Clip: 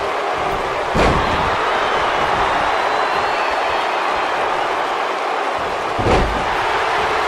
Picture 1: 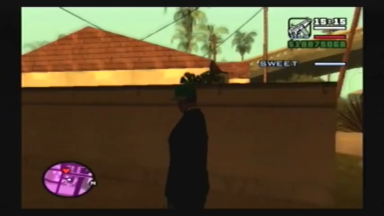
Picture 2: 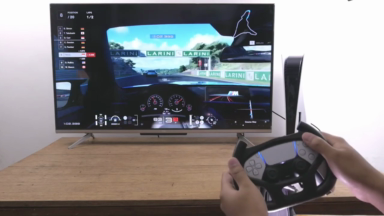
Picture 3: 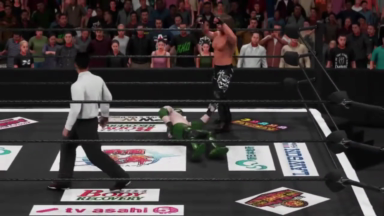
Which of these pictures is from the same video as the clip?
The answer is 3